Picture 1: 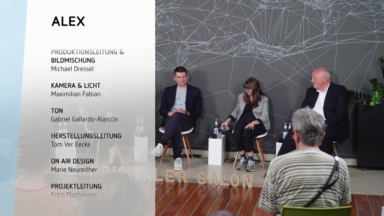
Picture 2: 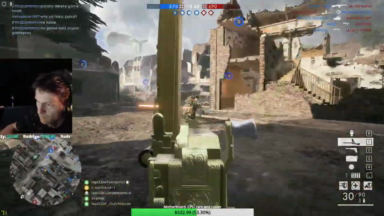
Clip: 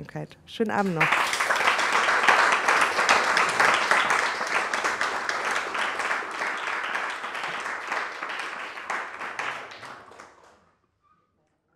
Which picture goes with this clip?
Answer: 1